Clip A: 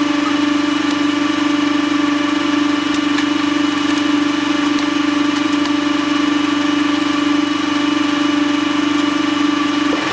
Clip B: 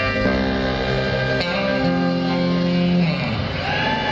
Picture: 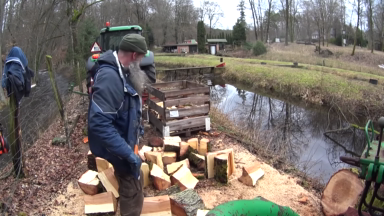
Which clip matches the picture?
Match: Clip A